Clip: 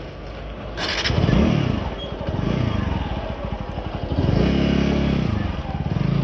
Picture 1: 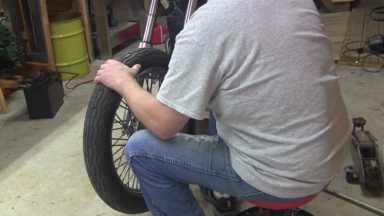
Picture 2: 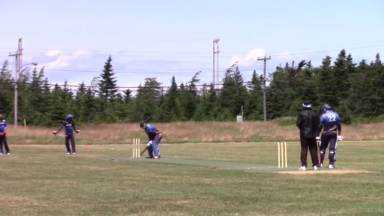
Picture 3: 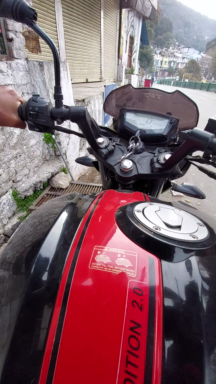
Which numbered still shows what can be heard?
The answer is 3